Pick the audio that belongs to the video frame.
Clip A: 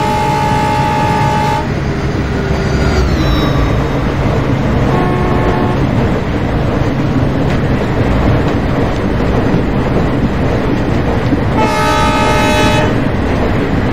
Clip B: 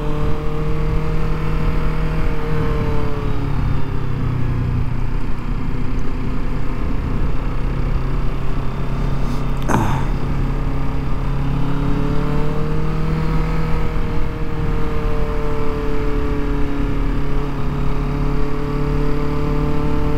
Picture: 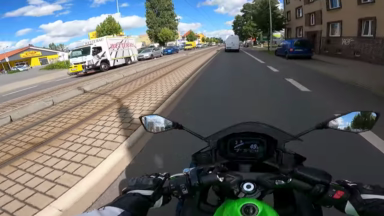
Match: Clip B